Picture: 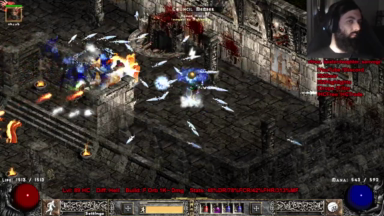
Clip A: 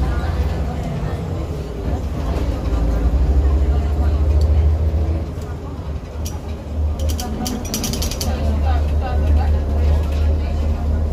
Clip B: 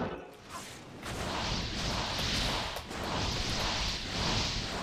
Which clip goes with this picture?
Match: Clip B